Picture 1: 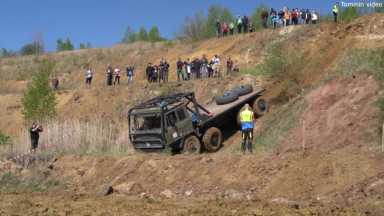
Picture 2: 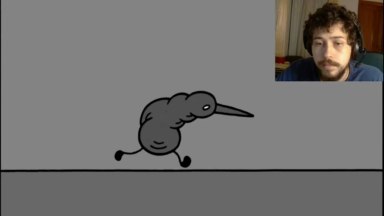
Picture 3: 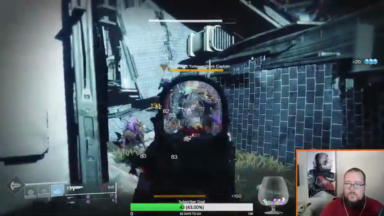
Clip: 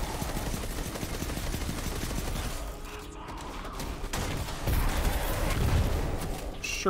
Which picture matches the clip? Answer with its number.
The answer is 3